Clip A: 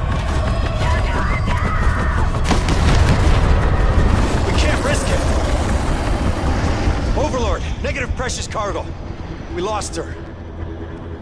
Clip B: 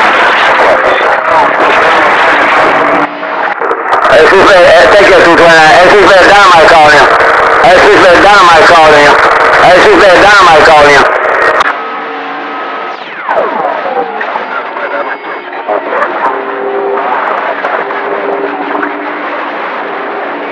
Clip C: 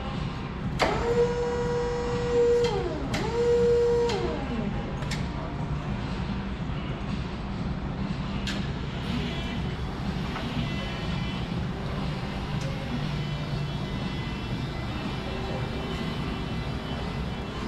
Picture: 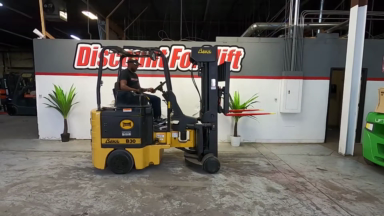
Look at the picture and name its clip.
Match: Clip C